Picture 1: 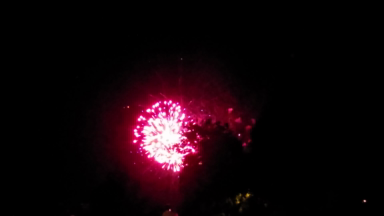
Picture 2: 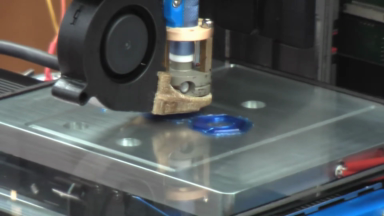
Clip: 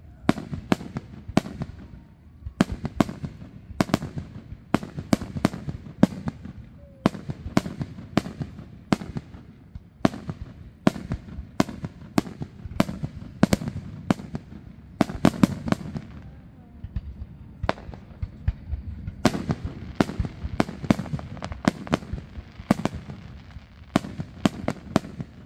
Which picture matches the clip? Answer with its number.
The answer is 1